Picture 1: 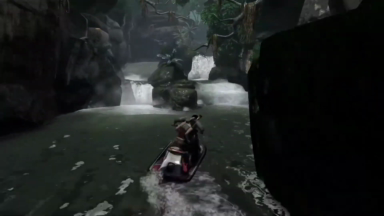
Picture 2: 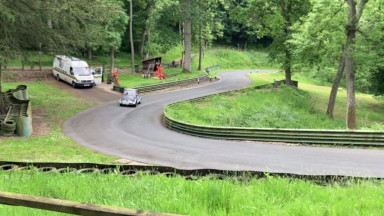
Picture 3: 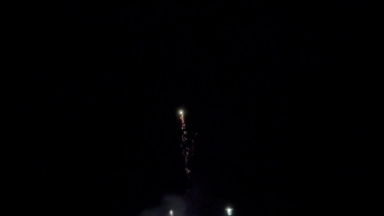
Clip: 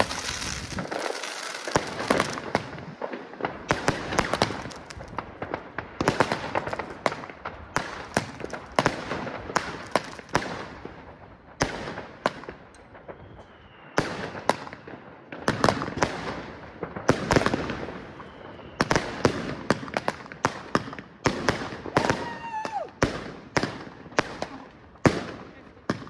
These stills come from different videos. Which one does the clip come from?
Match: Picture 3